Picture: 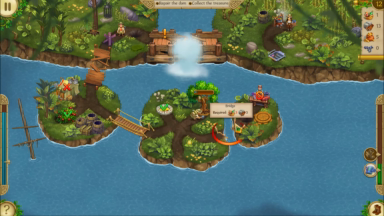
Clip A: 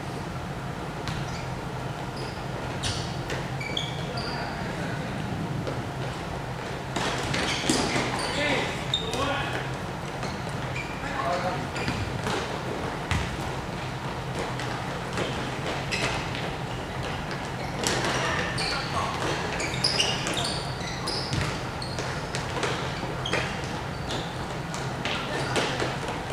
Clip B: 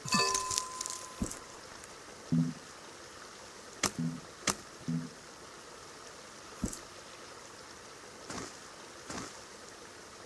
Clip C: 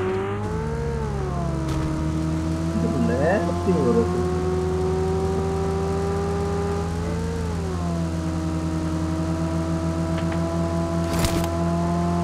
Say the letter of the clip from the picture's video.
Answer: B